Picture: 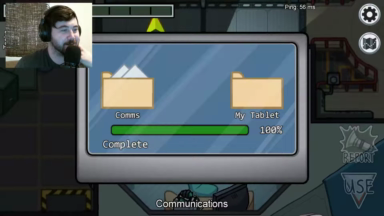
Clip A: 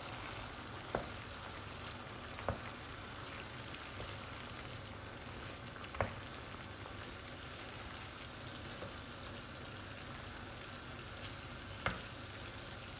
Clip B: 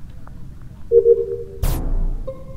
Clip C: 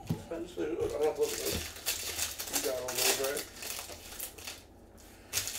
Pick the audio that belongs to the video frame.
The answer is B